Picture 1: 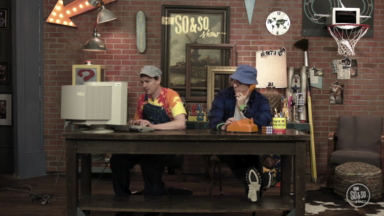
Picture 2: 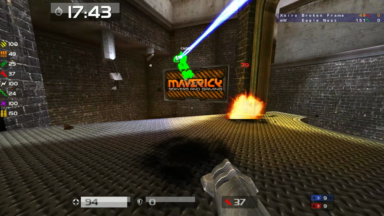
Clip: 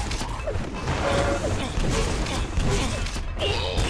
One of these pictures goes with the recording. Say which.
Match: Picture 2